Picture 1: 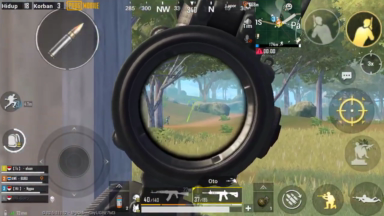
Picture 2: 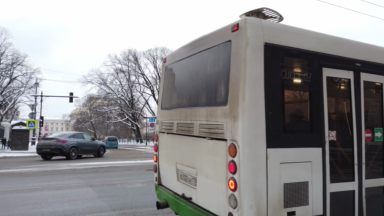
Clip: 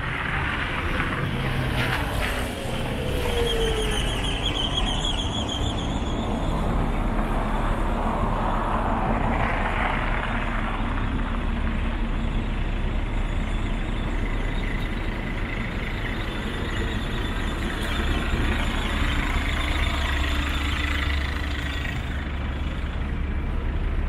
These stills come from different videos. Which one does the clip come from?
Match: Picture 2